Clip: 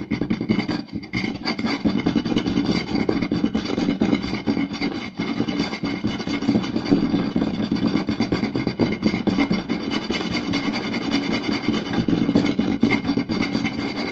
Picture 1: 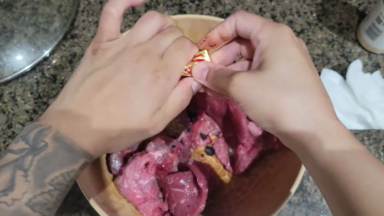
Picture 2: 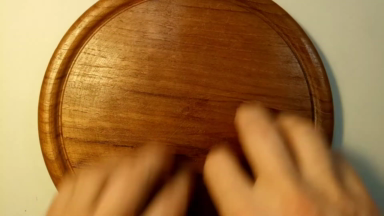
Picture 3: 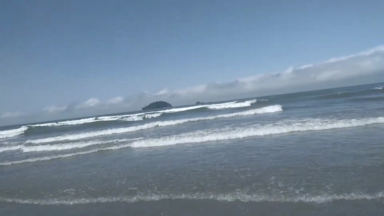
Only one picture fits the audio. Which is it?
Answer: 2